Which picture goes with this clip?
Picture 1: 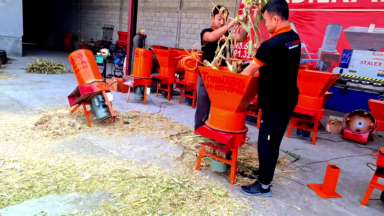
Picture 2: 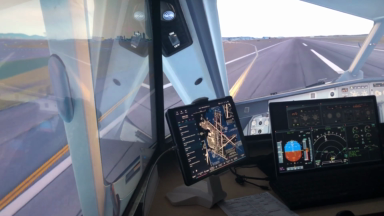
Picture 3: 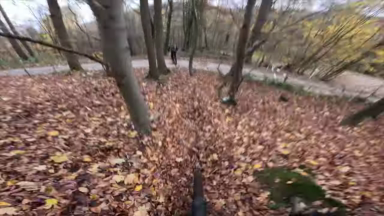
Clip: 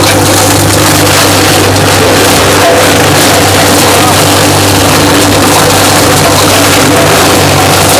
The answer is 1